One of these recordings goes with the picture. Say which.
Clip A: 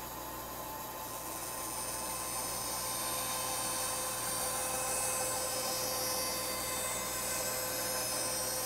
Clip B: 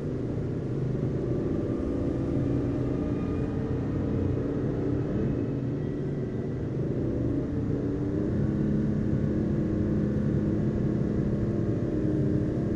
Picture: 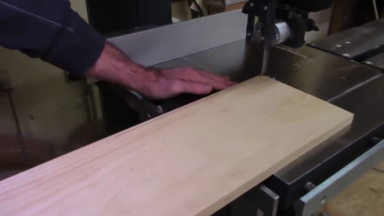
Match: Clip A